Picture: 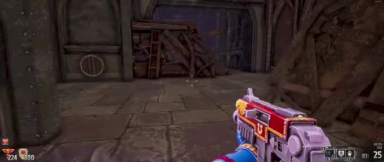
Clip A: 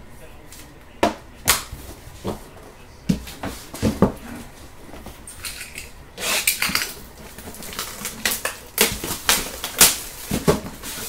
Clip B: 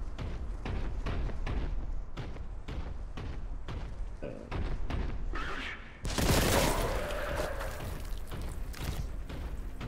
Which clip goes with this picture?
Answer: B